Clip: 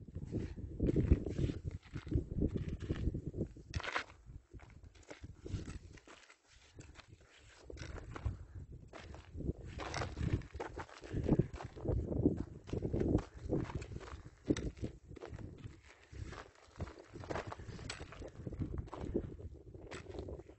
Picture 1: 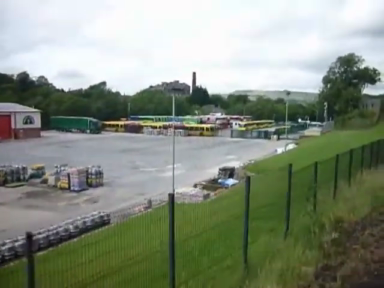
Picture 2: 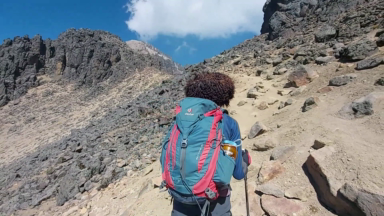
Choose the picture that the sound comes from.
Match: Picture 2